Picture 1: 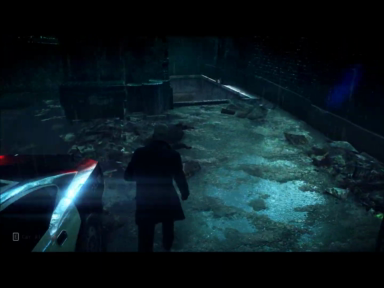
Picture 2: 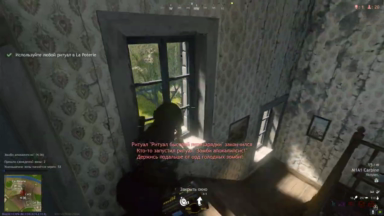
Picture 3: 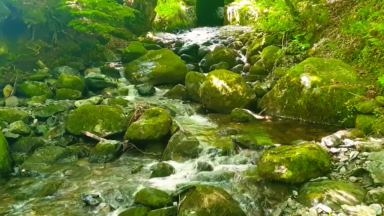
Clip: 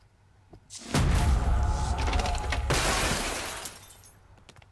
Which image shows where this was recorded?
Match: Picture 2